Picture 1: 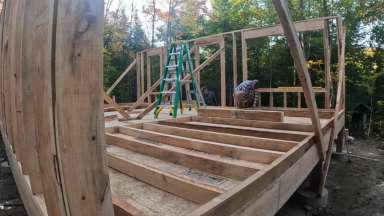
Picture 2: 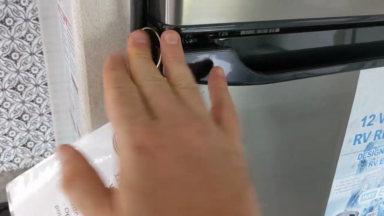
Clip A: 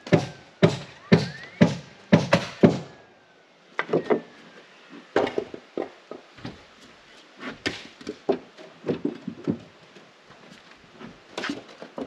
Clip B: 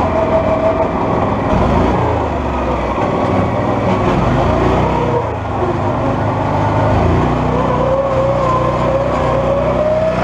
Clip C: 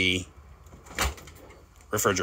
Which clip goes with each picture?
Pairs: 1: A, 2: C